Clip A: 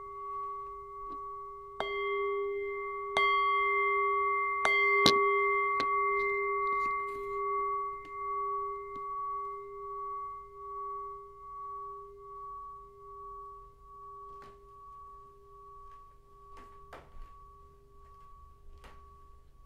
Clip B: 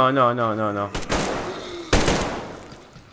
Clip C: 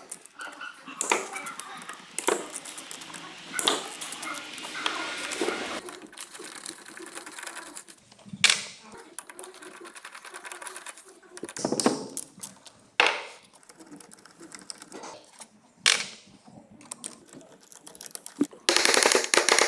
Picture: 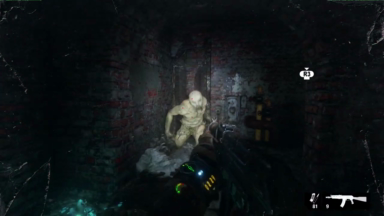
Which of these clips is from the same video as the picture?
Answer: B